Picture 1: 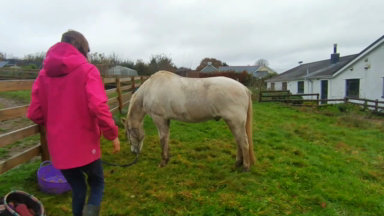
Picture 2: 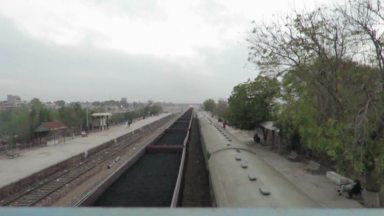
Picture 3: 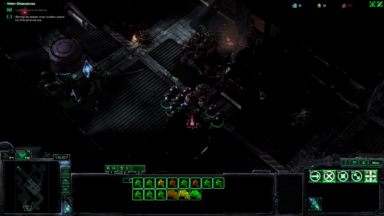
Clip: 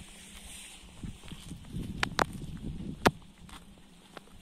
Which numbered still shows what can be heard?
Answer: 1